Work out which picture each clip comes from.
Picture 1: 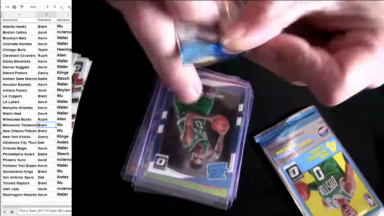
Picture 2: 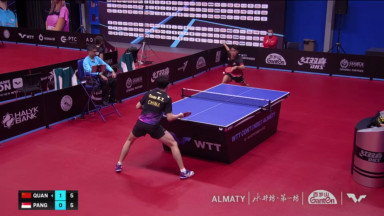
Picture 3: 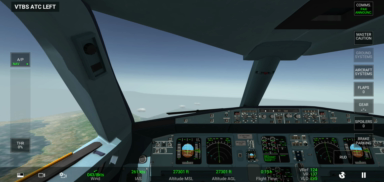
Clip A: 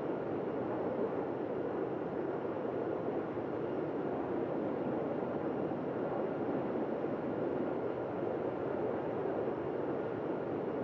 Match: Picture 3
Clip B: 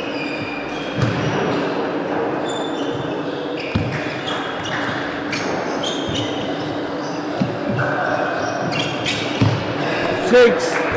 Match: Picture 2